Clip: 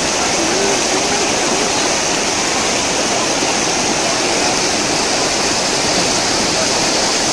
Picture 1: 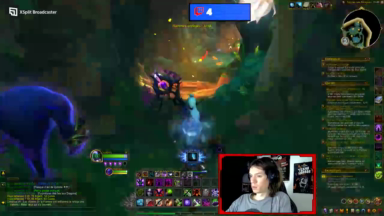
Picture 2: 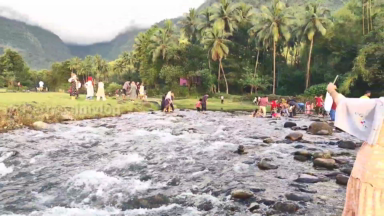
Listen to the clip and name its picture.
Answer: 2